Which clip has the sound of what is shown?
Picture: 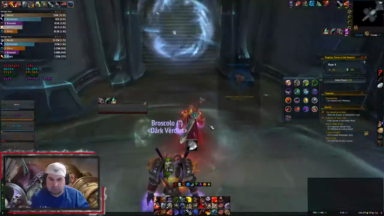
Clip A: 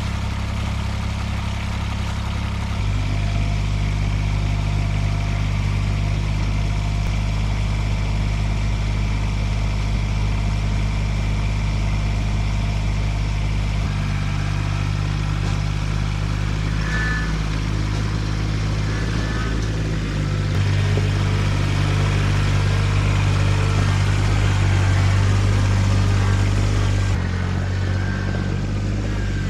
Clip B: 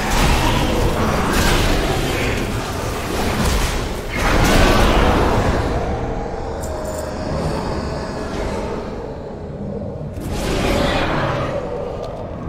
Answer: B